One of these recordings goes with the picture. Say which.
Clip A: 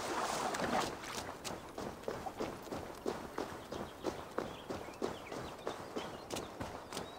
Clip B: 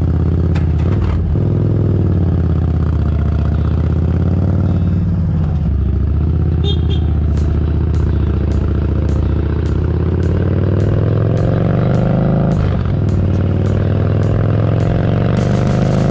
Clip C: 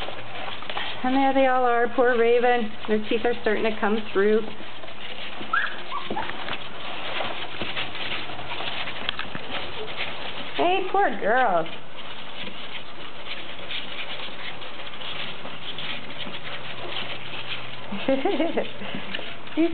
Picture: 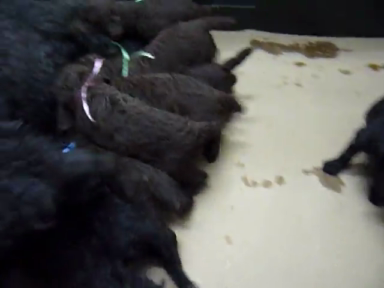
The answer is C